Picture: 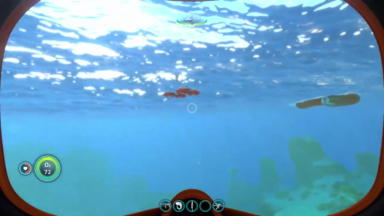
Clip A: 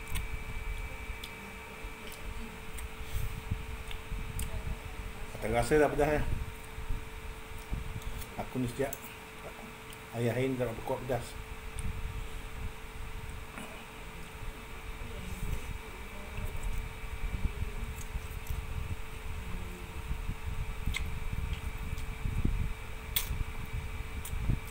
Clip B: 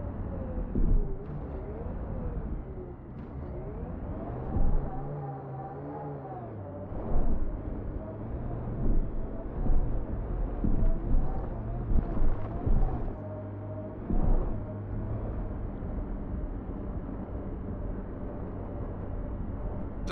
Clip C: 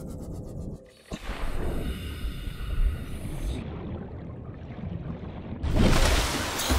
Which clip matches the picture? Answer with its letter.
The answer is C